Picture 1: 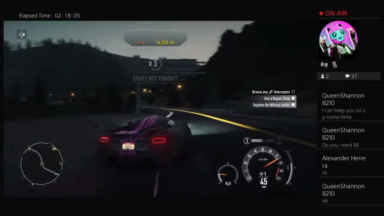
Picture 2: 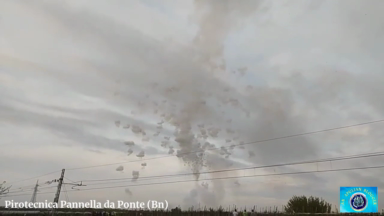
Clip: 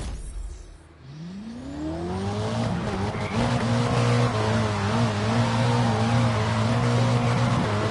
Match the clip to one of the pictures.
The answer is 1